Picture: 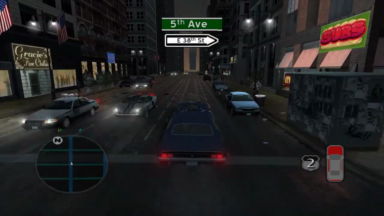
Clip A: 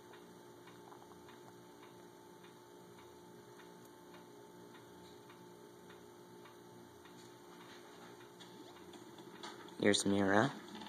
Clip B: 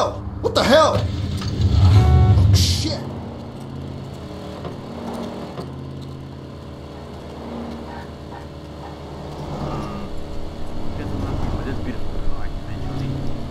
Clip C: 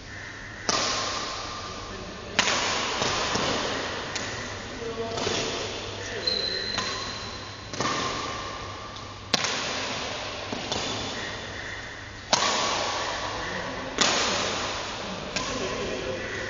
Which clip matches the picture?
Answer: B